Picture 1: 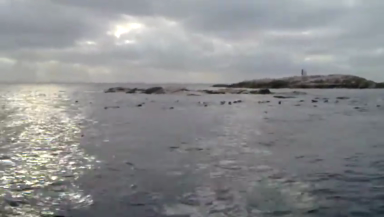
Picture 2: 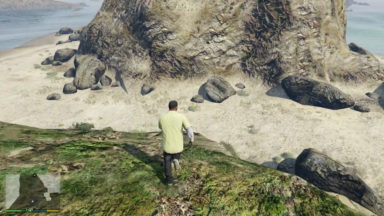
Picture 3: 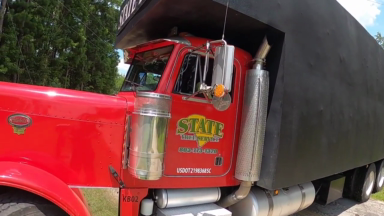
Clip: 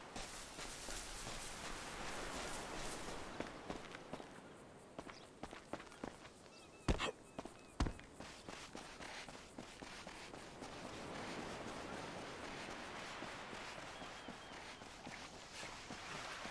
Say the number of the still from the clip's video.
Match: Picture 2